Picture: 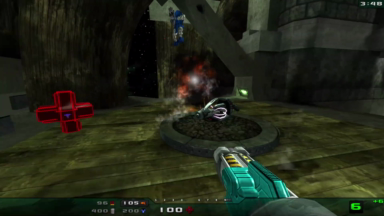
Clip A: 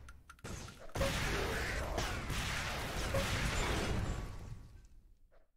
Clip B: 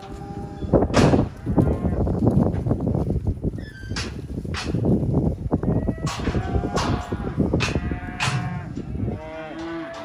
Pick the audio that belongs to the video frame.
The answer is A